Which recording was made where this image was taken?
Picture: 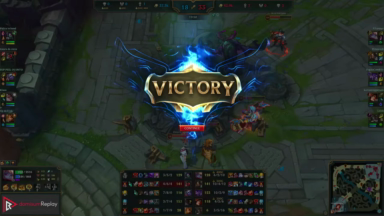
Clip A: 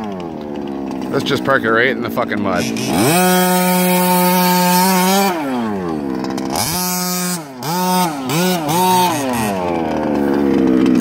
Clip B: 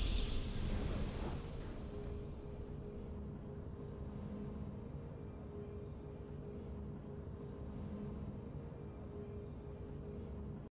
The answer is B